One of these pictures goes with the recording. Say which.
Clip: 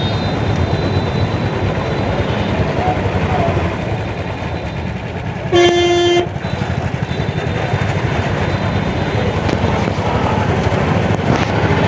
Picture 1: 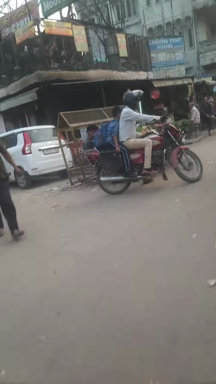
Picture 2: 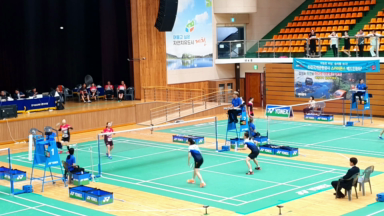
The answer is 1